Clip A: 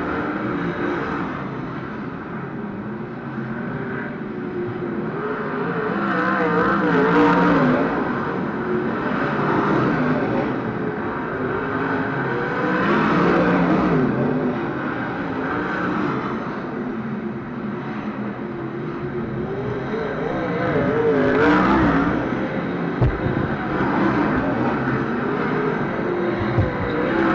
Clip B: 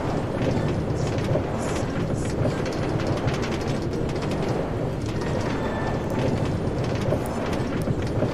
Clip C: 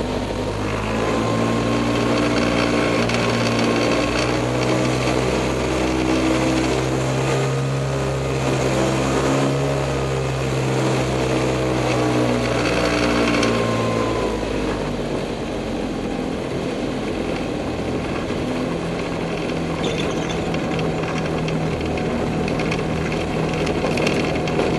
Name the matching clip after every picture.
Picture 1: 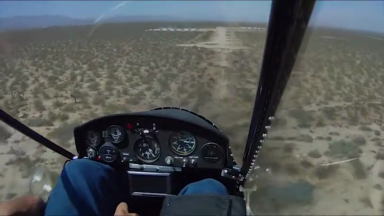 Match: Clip C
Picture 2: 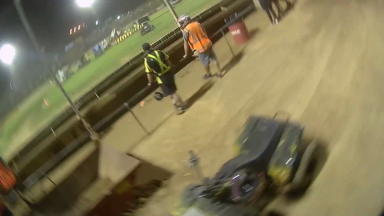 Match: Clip A